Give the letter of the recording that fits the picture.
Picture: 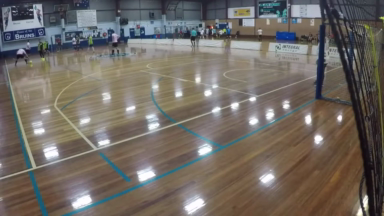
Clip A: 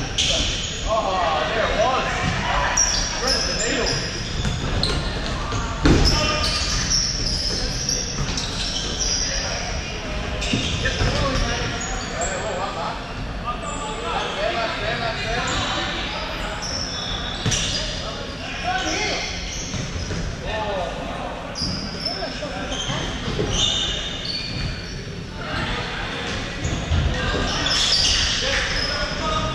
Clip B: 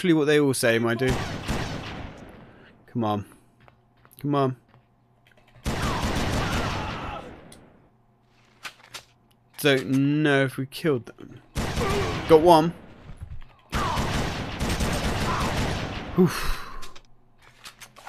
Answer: A